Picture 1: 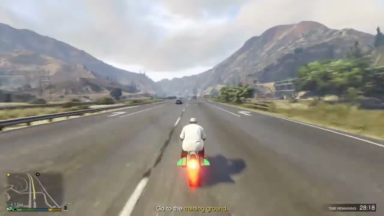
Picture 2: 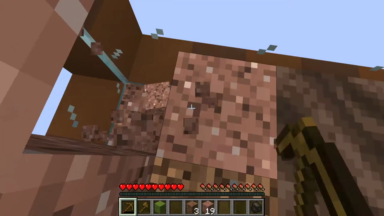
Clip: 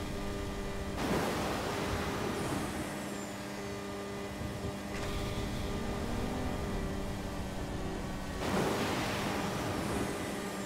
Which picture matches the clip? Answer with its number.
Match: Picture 1